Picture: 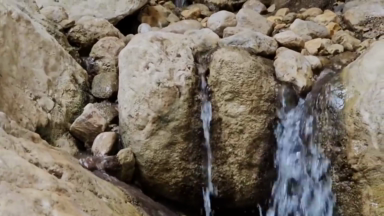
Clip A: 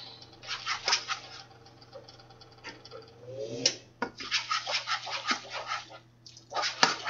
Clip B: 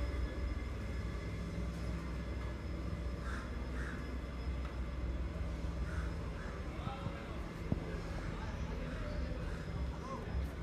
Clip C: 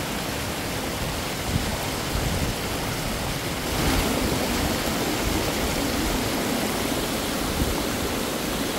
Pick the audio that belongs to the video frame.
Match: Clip C